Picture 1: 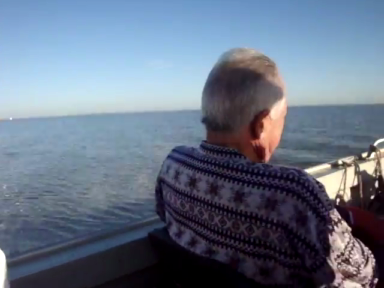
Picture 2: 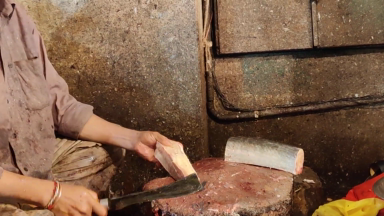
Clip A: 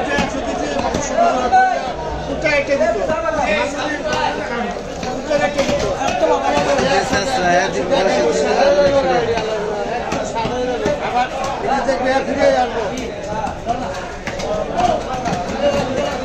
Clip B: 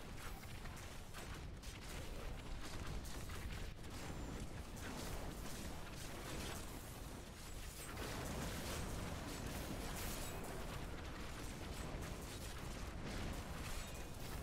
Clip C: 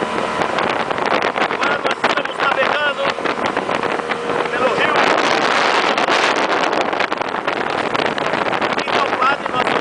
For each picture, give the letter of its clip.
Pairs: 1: C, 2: A